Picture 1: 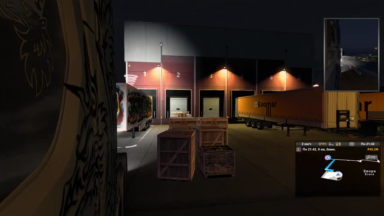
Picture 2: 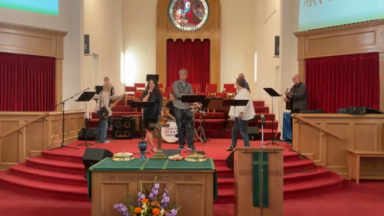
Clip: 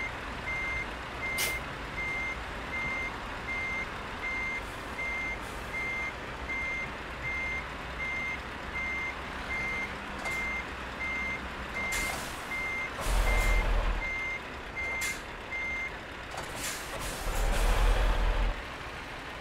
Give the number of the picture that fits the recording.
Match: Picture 1